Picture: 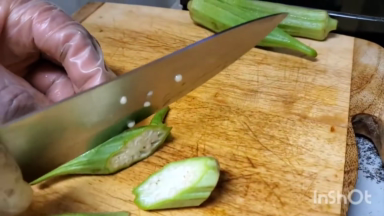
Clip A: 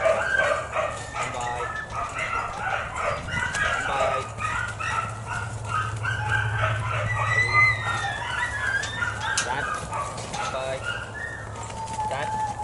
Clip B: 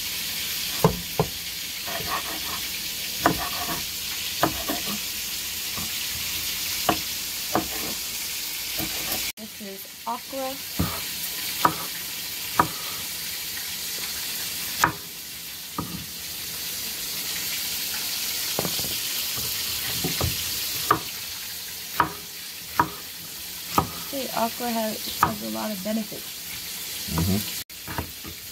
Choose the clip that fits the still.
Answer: B